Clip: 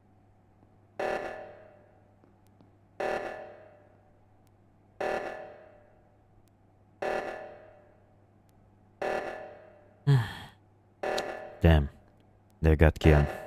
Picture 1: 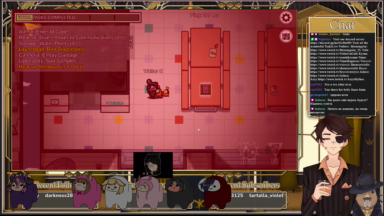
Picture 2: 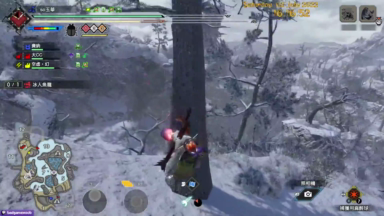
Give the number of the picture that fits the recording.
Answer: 1